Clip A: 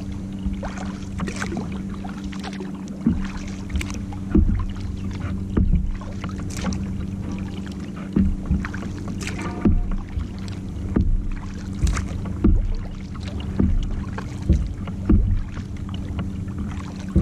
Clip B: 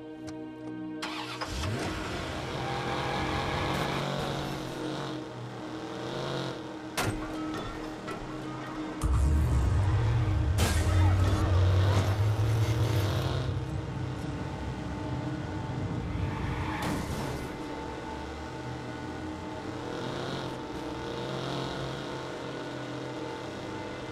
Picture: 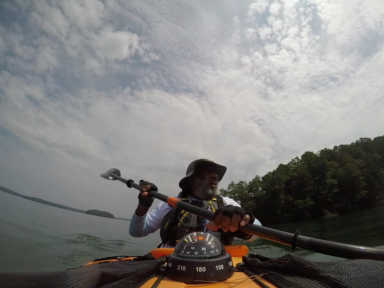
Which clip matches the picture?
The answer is A